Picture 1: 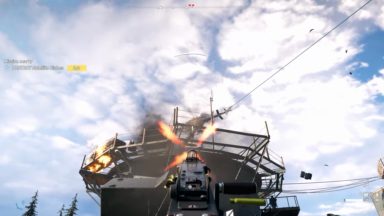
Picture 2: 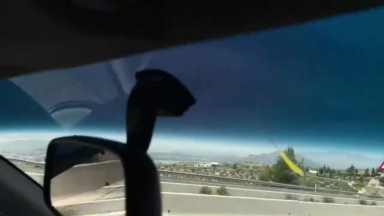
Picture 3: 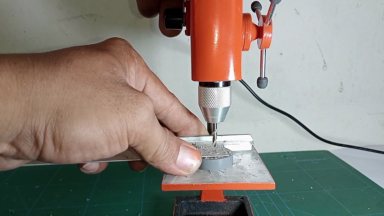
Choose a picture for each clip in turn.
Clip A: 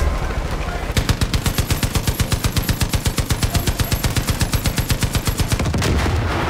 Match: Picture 1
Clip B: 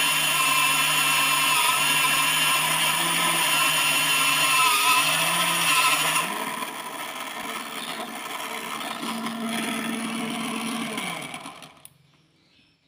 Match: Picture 3